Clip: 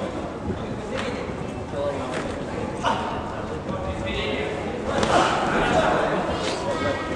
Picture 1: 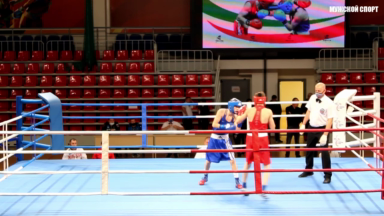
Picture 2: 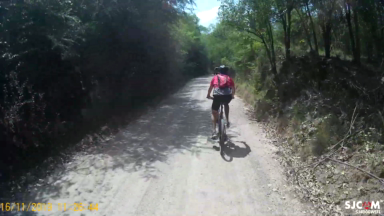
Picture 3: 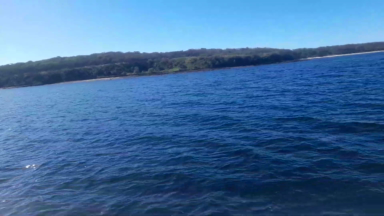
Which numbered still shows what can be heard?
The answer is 1